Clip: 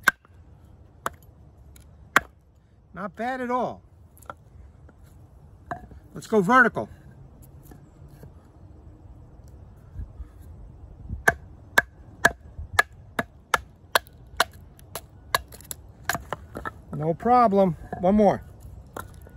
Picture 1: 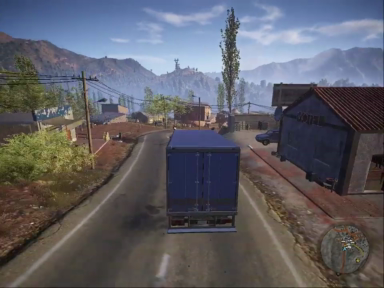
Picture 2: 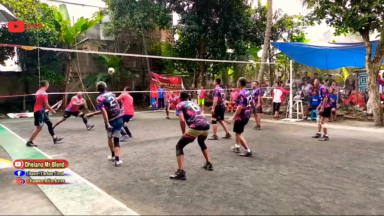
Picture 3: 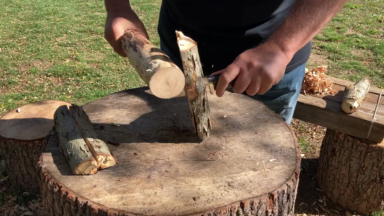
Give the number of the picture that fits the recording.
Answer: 3